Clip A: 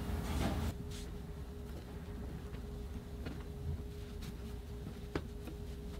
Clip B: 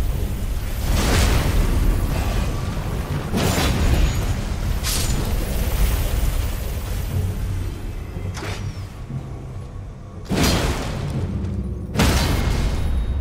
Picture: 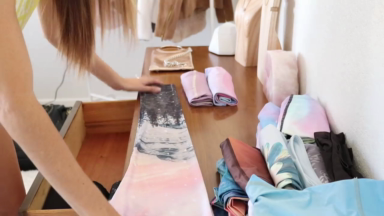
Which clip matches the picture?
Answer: A